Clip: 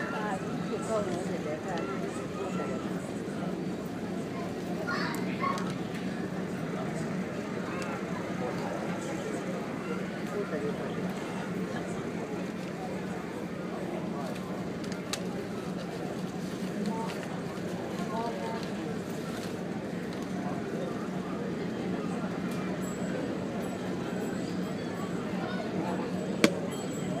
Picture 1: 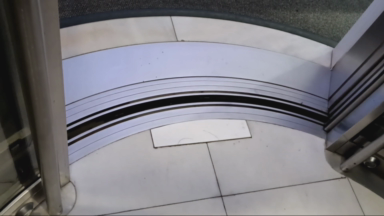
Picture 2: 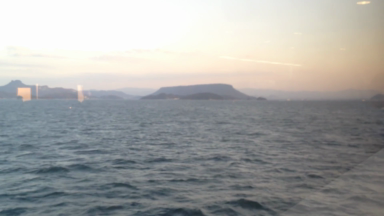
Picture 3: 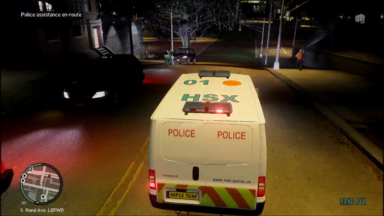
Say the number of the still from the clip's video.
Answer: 2